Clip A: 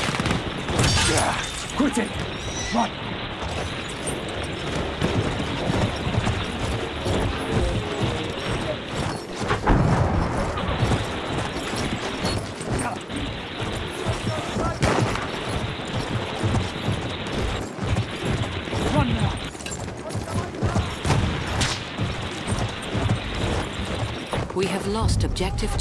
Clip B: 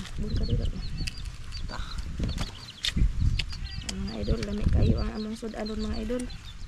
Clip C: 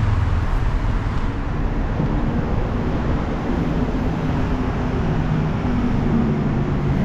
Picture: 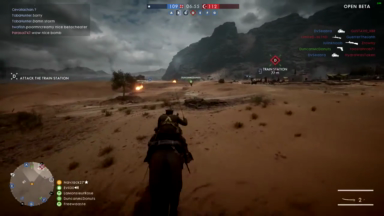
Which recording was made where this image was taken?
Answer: A